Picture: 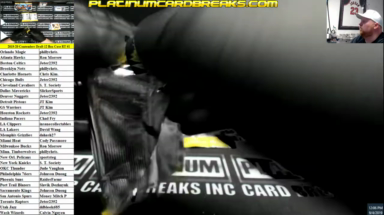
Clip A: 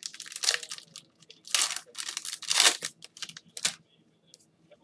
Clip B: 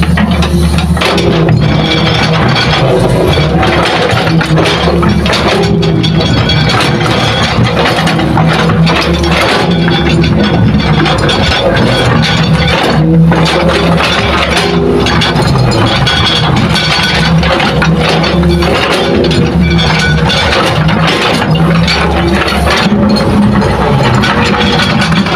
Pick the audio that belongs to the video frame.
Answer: A